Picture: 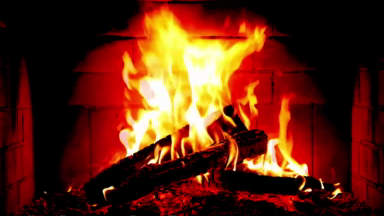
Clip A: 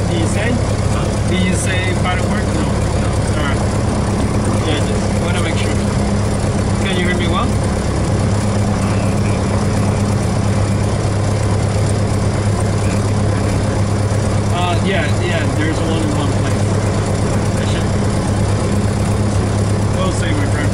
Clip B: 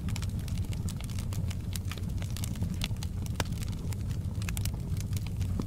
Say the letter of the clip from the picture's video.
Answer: B